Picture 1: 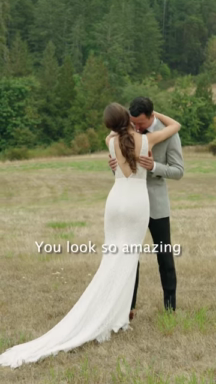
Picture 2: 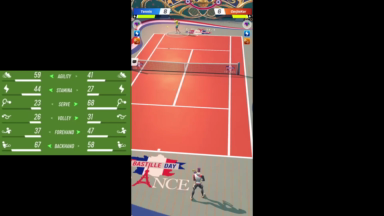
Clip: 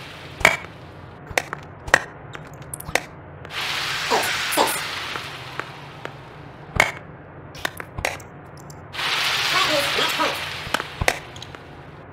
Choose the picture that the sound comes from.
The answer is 2